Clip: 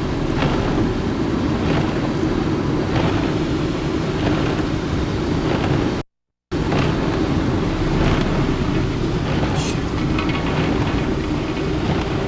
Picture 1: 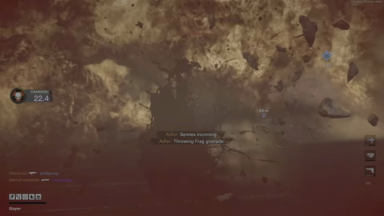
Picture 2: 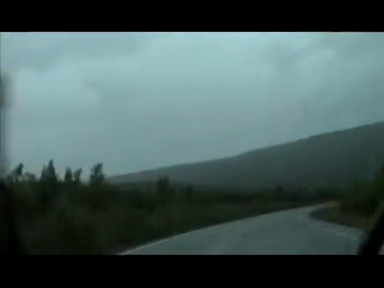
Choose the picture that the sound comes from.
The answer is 2